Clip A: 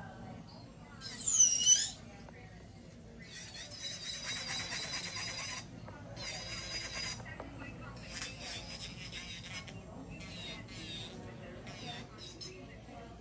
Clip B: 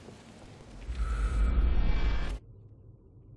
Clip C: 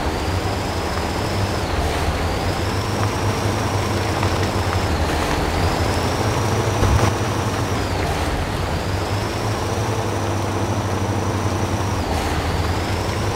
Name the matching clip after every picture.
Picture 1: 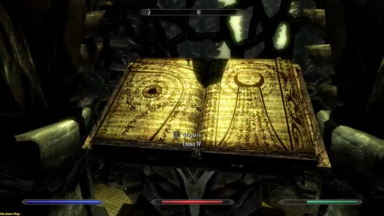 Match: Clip B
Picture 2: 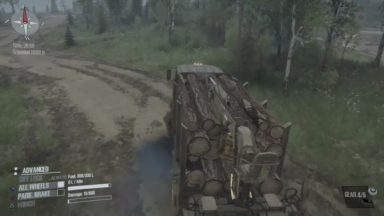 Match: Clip C